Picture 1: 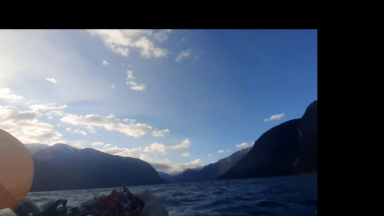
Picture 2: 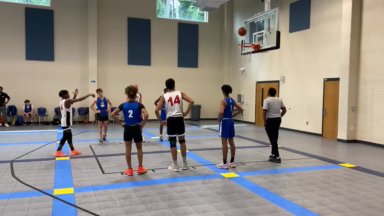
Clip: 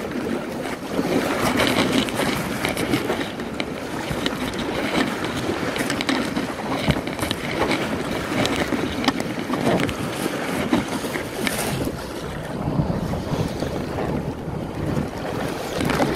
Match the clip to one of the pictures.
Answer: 1